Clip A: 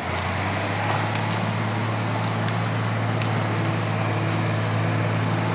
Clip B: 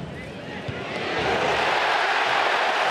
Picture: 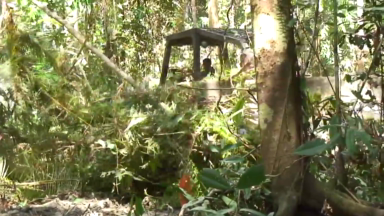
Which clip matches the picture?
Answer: A